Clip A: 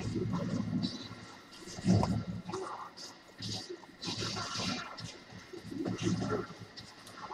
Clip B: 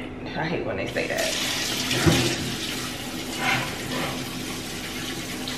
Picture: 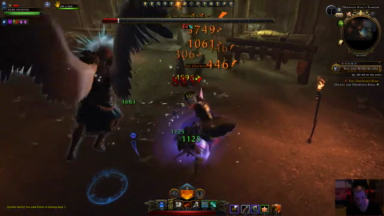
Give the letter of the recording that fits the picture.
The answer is A